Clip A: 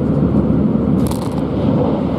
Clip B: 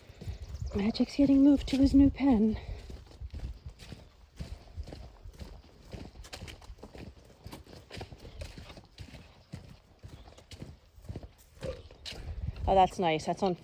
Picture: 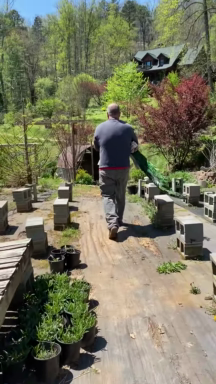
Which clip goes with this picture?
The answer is B